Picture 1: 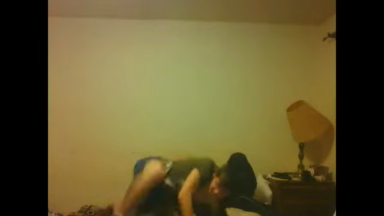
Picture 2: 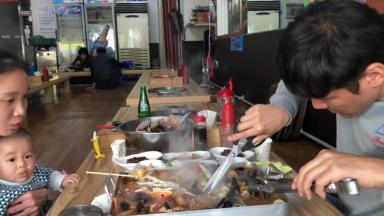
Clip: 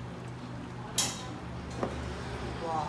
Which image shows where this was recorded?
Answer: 2